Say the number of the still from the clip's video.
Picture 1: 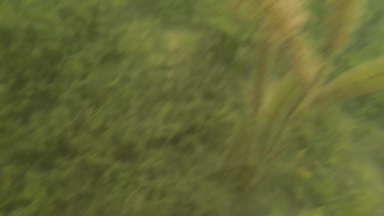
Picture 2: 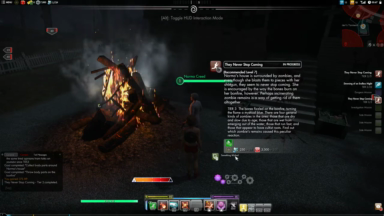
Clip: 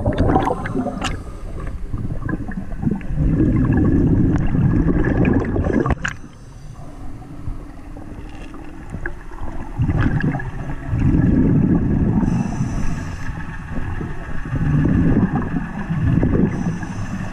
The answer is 1